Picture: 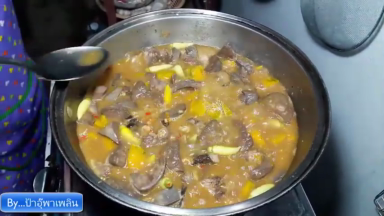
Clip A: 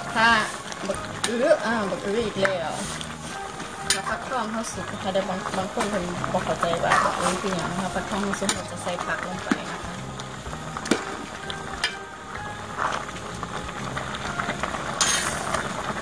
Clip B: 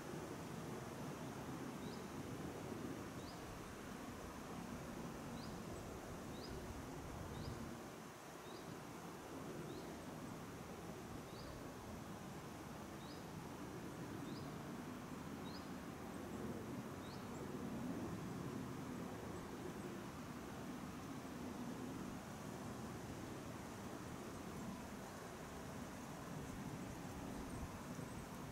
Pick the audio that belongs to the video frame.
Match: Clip A